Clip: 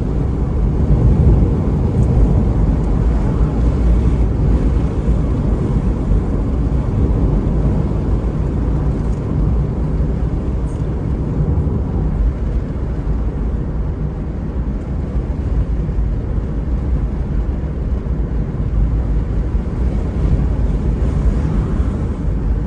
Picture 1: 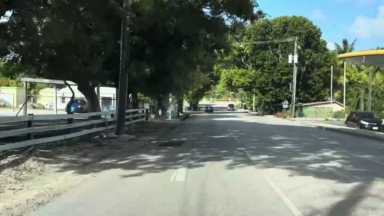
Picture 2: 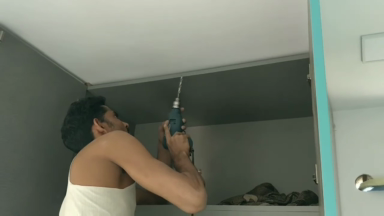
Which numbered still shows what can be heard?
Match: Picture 1